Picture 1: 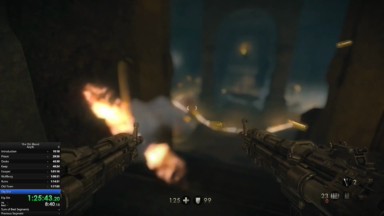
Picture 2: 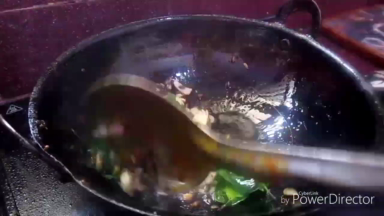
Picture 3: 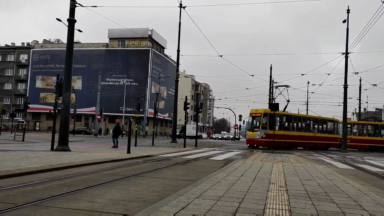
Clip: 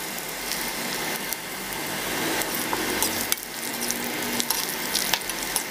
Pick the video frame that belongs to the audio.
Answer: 2